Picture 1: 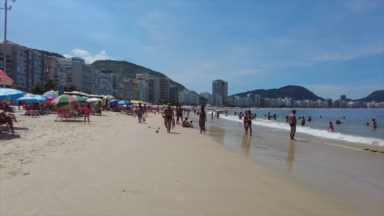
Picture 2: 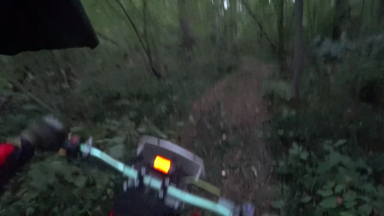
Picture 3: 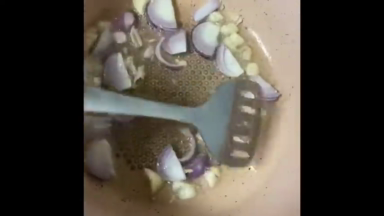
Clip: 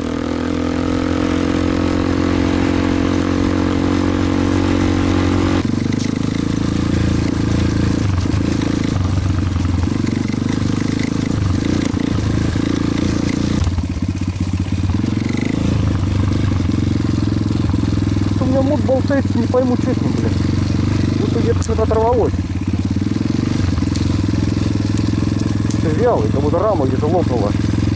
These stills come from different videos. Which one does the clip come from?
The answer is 2